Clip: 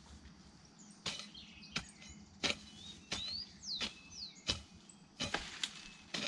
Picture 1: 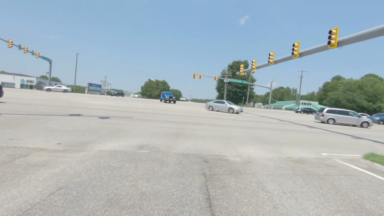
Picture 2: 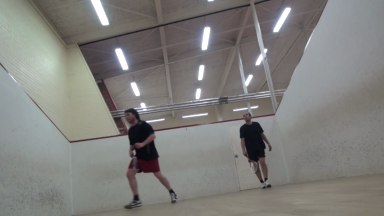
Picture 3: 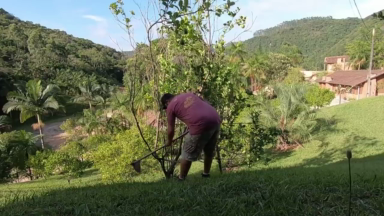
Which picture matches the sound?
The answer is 3